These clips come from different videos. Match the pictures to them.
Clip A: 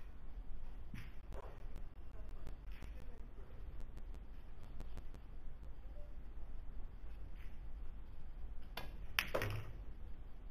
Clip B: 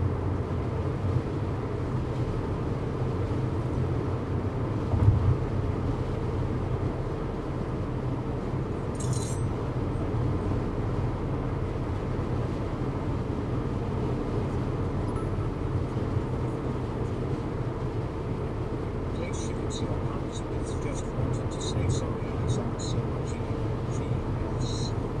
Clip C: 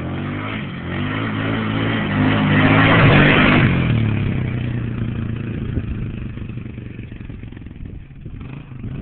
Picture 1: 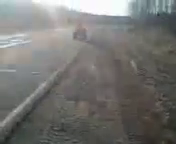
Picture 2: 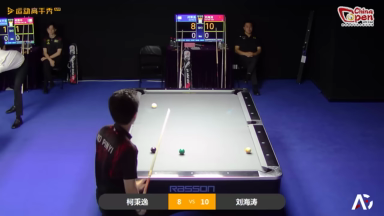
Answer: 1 C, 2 A